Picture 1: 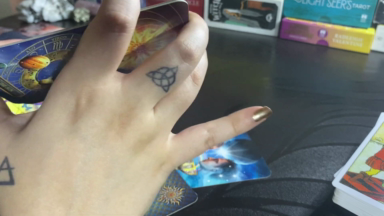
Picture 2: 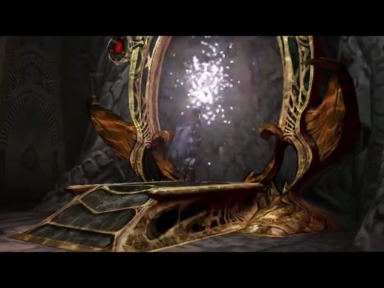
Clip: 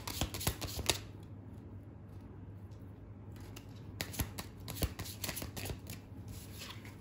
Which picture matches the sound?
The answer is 1